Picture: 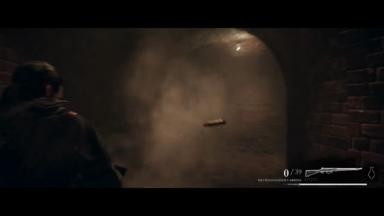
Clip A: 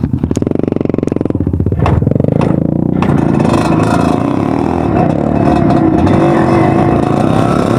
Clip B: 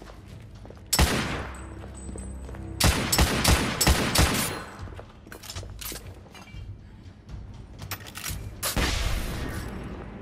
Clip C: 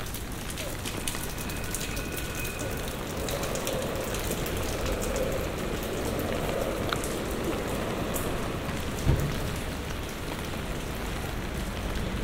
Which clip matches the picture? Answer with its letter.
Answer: B